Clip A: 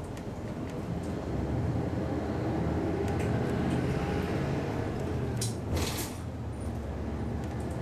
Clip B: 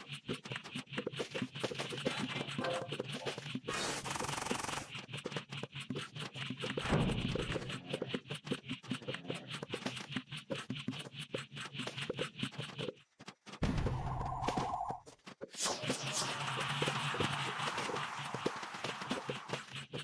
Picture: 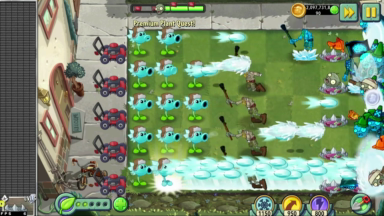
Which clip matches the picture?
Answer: B